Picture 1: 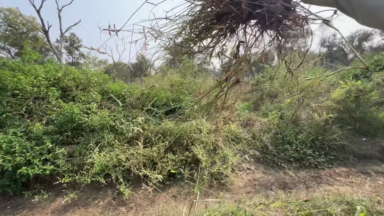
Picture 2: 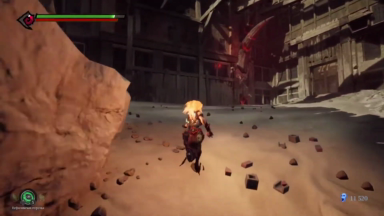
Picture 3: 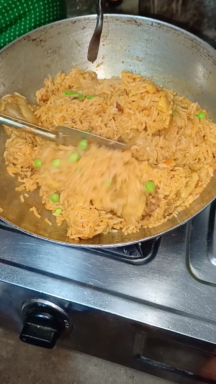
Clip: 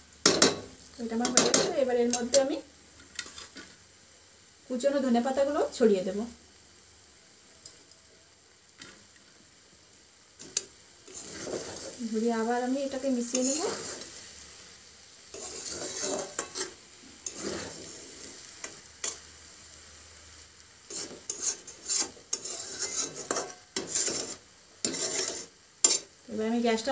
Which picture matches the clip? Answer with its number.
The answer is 3